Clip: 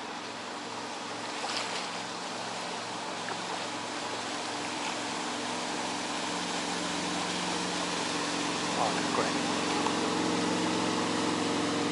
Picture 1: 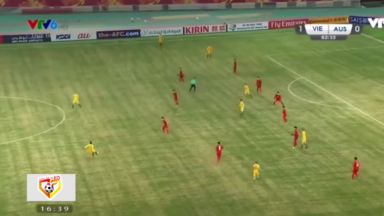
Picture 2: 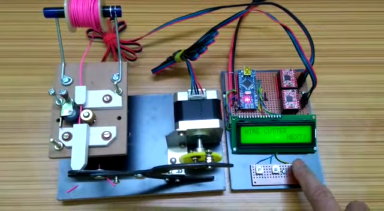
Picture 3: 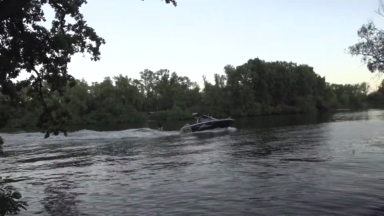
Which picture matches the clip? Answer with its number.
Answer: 3